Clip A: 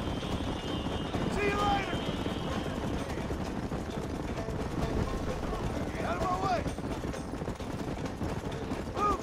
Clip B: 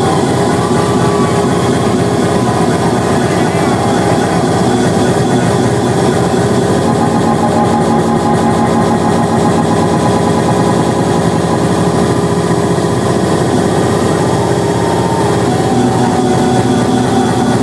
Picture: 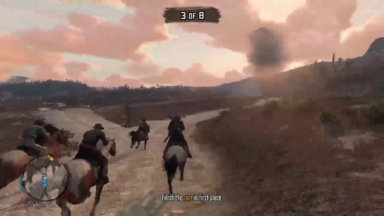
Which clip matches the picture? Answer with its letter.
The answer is A